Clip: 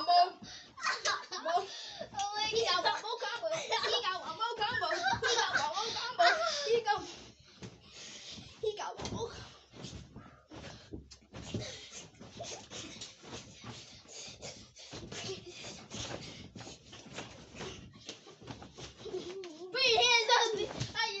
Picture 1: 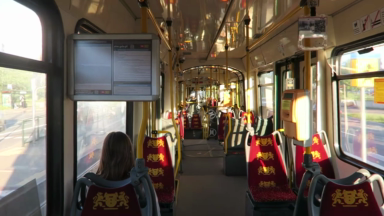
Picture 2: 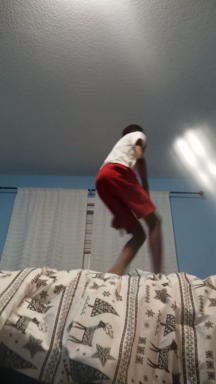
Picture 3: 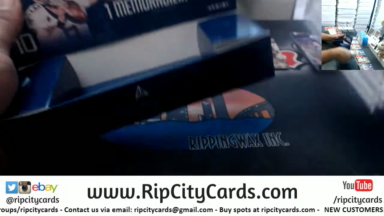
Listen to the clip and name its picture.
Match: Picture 2